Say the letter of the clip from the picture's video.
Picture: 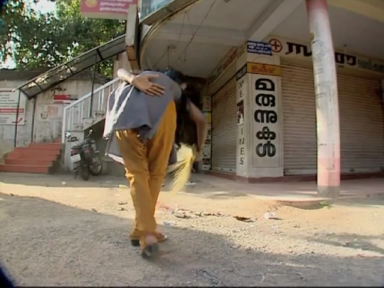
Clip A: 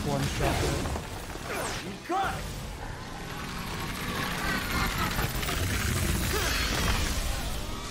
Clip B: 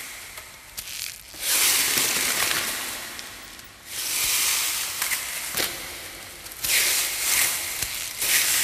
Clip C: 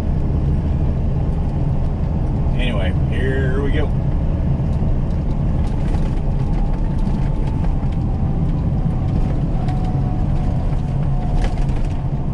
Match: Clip B